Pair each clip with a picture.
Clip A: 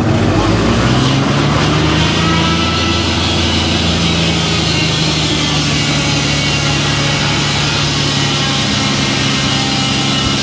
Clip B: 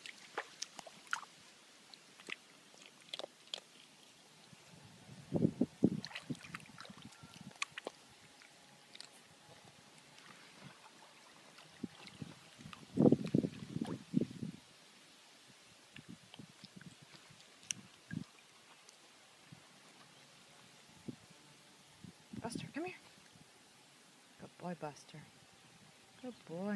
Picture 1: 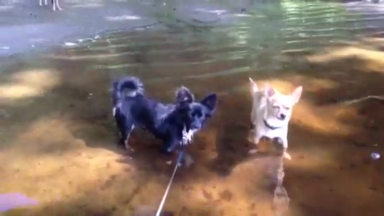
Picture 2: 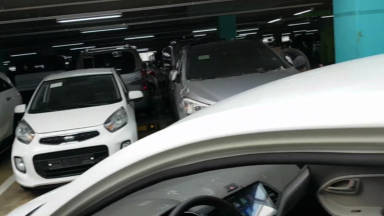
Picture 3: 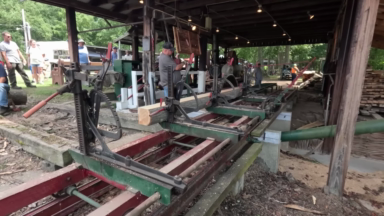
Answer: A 3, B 1